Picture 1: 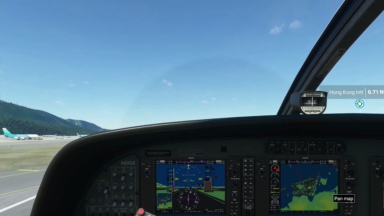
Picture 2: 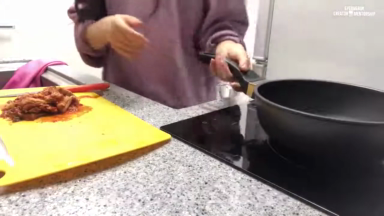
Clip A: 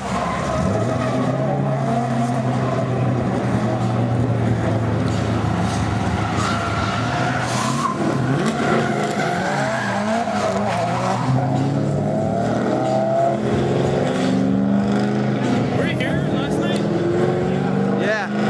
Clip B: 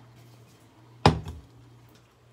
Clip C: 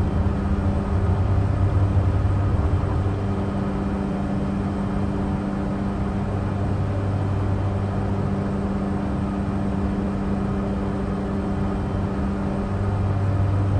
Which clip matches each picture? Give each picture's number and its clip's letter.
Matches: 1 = C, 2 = B